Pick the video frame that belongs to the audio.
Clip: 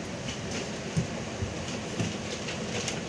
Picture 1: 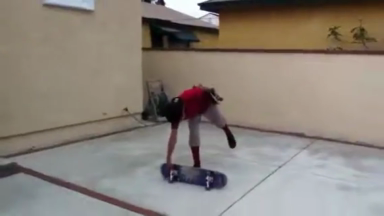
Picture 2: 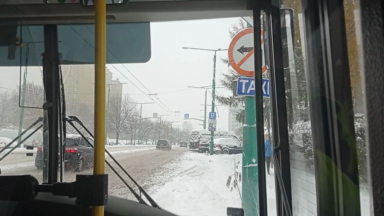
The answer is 2